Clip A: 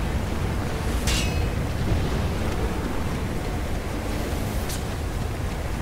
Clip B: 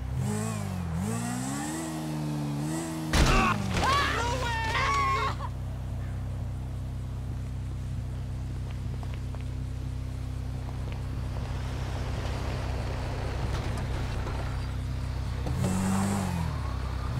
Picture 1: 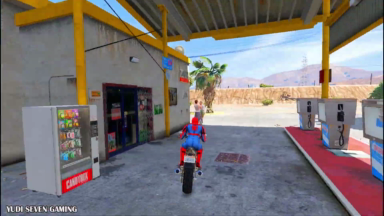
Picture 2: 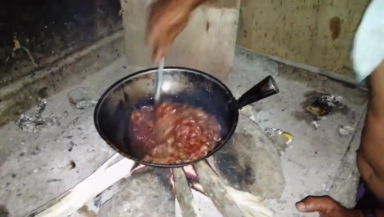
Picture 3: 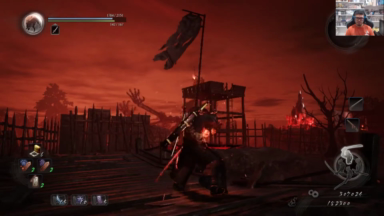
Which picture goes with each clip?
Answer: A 3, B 1